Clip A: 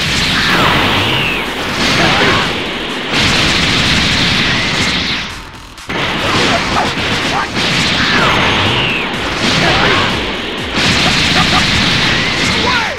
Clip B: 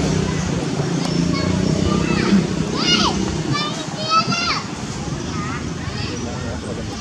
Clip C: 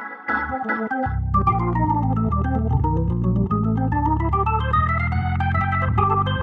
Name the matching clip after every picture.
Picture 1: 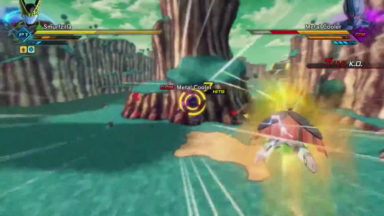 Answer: A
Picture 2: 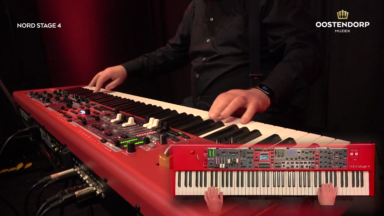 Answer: C